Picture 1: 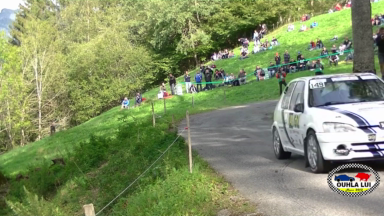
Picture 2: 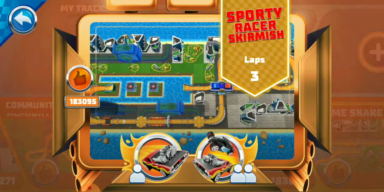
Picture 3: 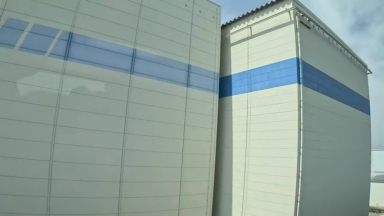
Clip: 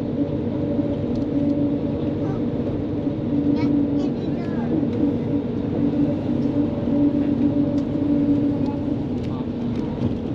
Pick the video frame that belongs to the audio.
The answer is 3